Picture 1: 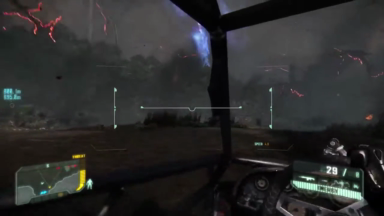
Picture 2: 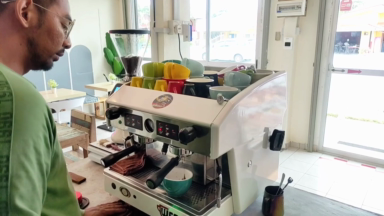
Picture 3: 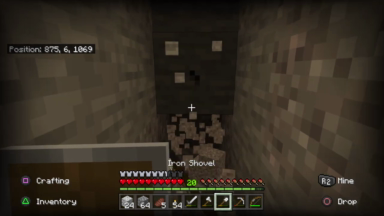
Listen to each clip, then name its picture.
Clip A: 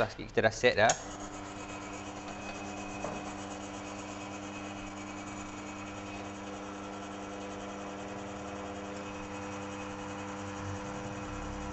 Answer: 2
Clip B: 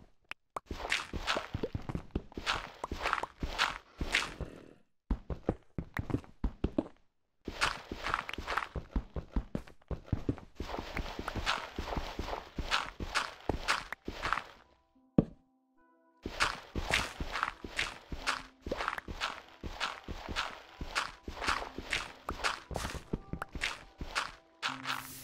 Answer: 3